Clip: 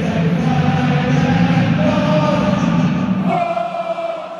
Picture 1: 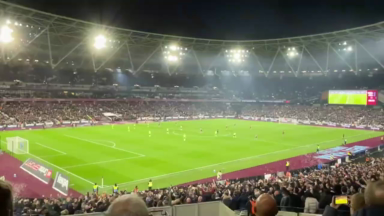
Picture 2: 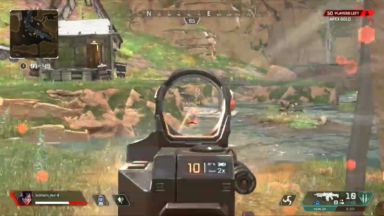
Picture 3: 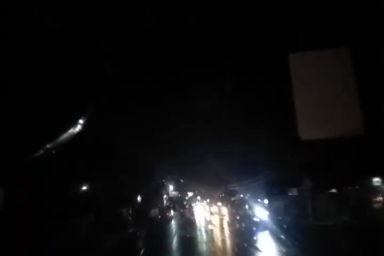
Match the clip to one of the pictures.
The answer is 1